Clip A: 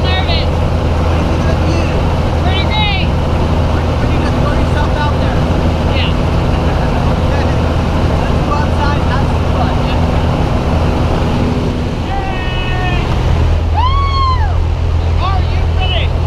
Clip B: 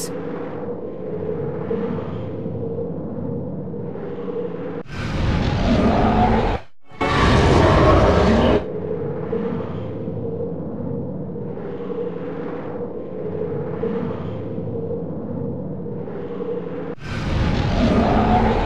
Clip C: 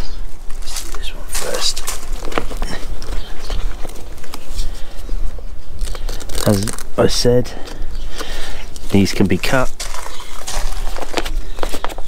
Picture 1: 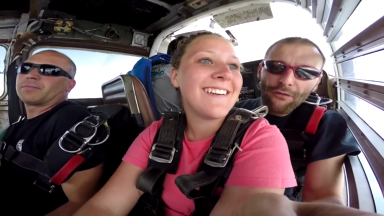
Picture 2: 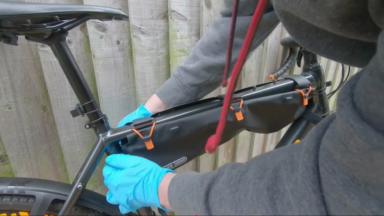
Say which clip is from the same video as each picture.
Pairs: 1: A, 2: C